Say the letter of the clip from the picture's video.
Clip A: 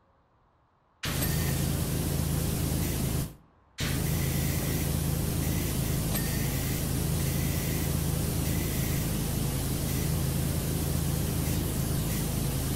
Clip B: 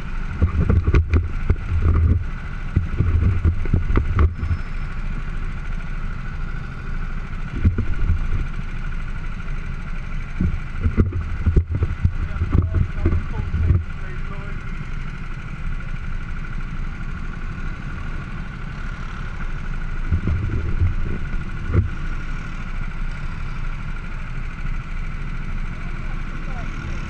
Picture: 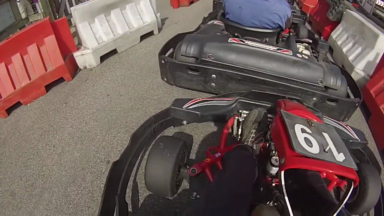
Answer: B